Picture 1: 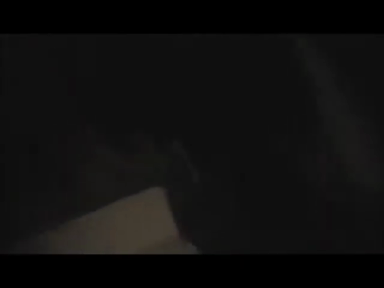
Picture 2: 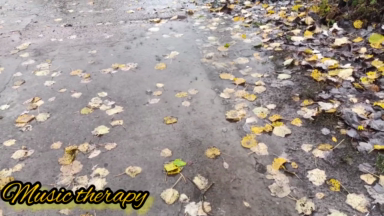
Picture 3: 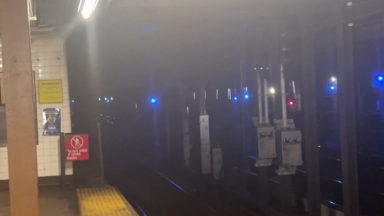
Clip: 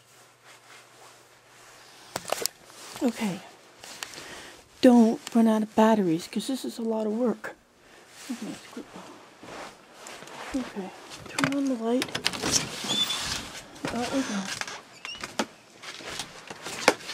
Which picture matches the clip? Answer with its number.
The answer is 1